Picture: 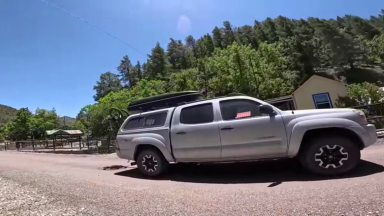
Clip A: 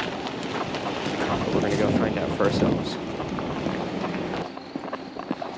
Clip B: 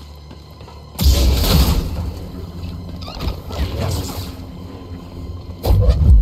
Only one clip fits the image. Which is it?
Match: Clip A